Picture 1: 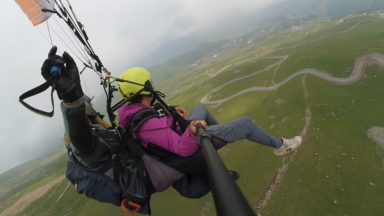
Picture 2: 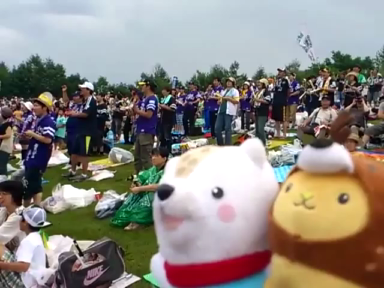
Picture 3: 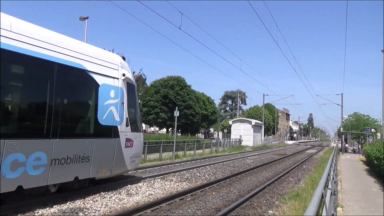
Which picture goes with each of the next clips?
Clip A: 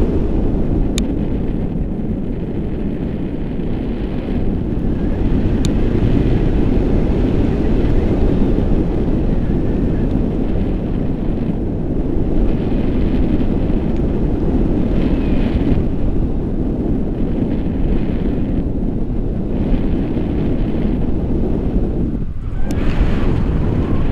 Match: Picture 1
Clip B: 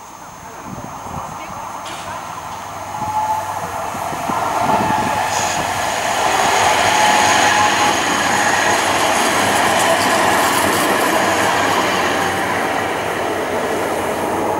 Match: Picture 3